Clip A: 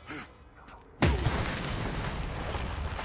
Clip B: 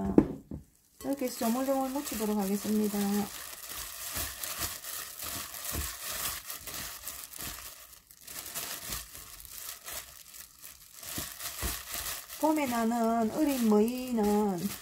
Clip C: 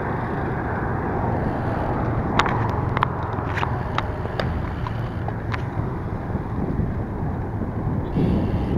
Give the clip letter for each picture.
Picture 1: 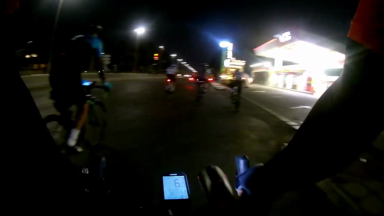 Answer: C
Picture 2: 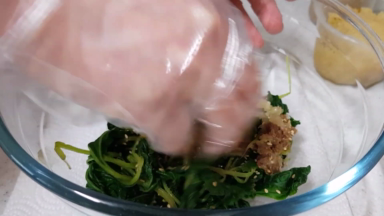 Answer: B